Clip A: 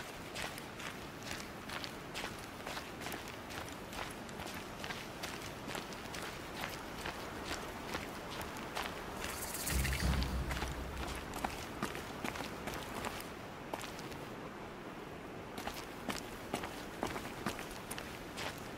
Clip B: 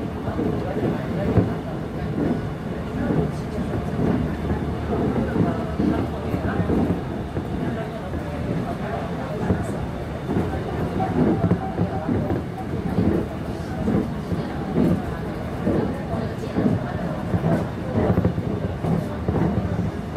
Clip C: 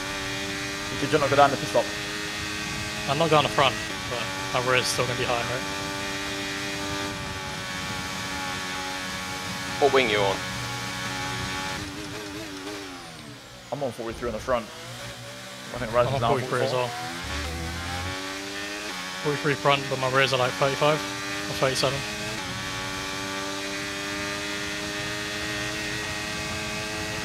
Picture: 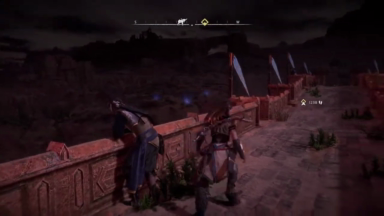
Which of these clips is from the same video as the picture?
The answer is A